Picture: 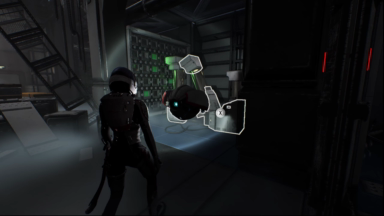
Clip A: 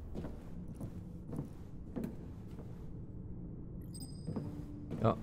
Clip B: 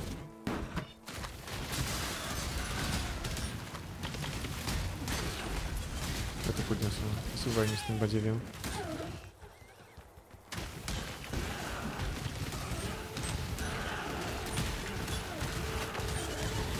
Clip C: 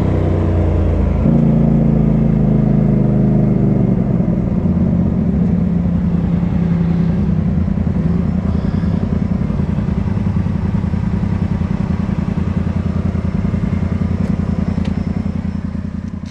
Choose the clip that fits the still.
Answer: A